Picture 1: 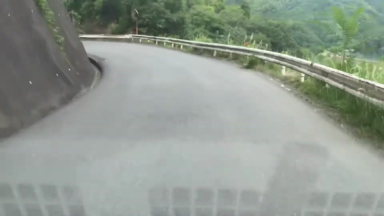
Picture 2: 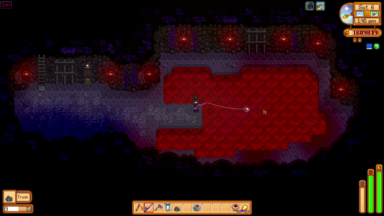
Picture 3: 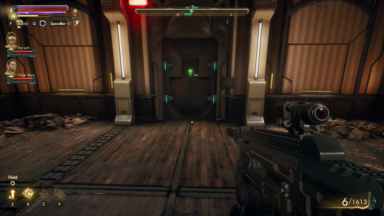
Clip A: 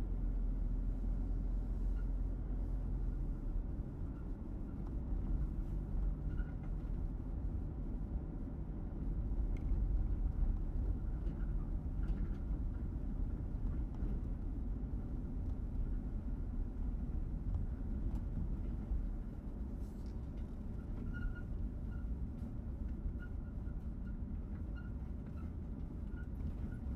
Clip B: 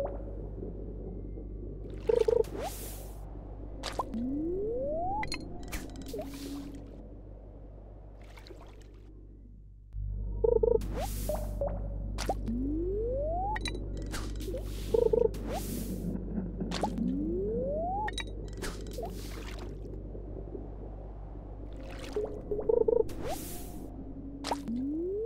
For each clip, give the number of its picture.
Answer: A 1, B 2